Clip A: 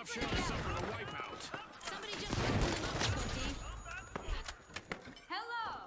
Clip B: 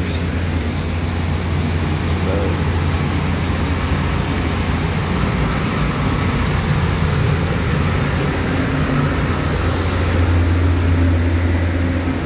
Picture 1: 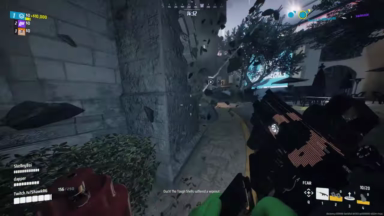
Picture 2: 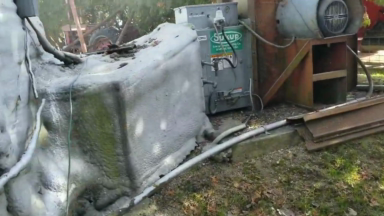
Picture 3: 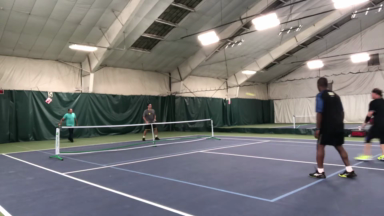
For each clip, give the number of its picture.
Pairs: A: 1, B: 2